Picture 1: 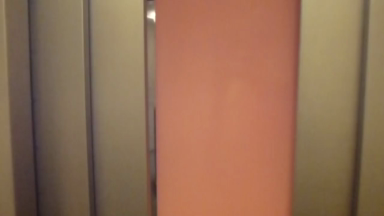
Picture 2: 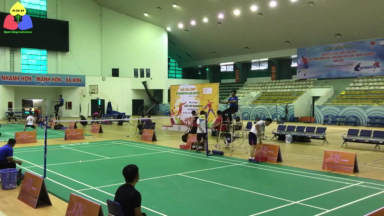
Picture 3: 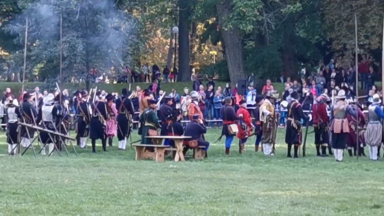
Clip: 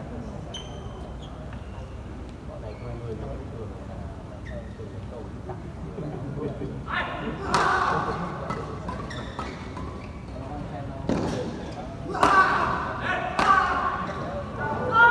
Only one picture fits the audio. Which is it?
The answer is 2